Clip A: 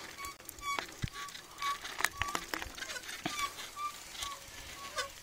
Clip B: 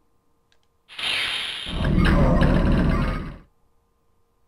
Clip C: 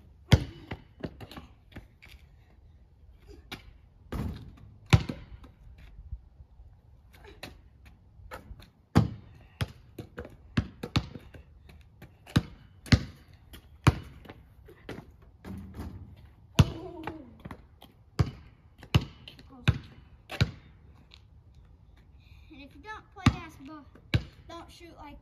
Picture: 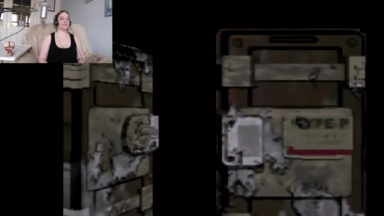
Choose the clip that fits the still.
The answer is B